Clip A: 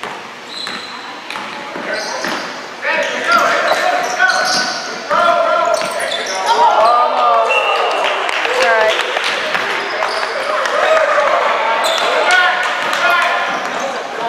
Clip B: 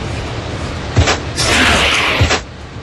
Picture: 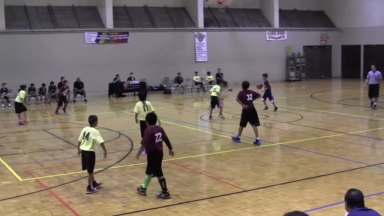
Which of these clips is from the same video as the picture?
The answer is A